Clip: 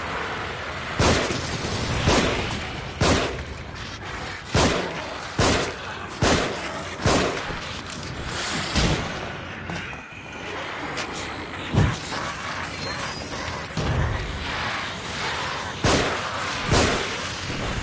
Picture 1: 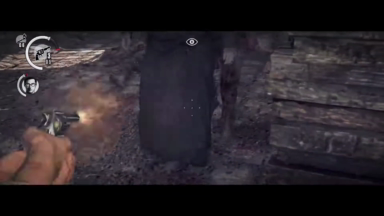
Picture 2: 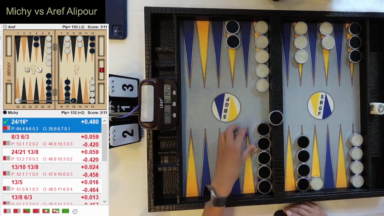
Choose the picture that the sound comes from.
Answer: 1